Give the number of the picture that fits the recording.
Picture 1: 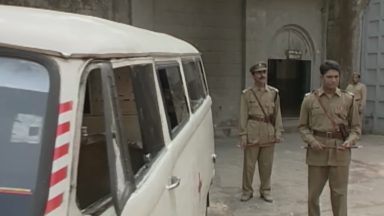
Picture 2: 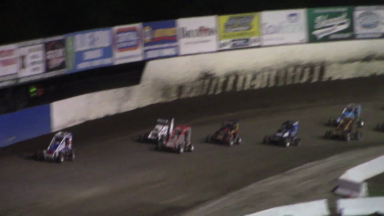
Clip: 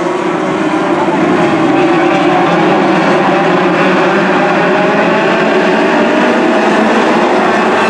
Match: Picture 2